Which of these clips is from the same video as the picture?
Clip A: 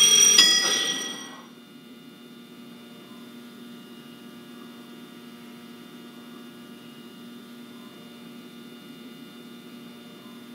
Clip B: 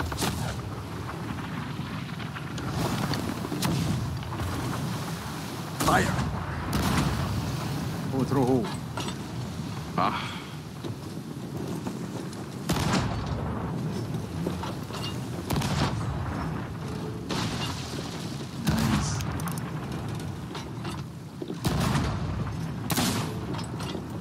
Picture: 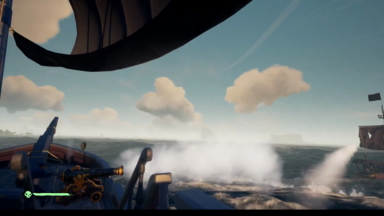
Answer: B